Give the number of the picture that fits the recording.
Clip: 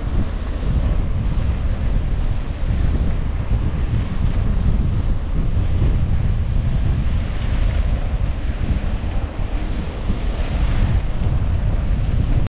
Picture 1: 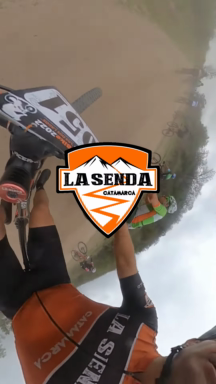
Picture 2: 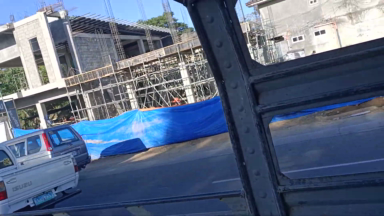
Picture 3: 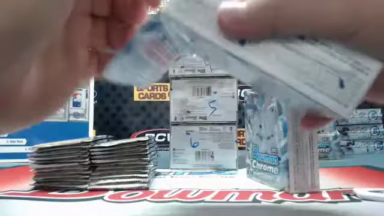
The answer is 1